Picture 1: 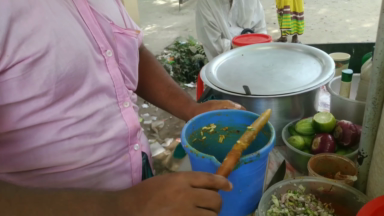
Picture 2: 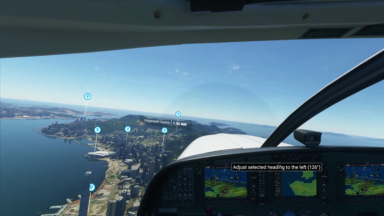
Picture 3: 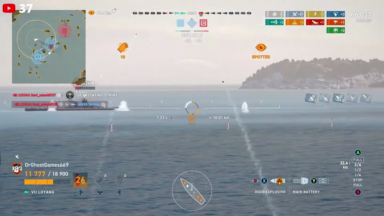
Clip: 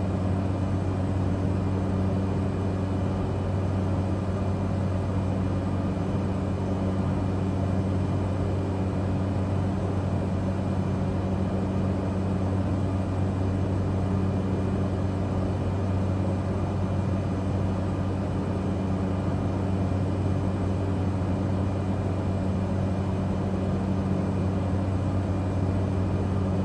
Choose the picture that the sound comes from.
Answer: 2